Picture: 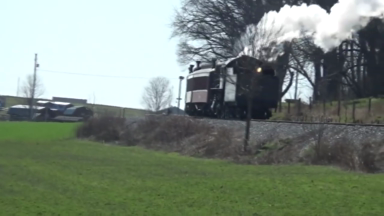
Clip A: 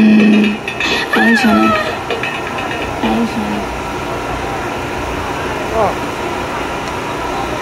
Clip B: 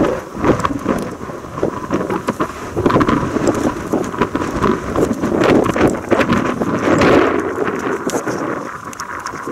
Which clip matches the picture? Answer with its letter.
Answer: B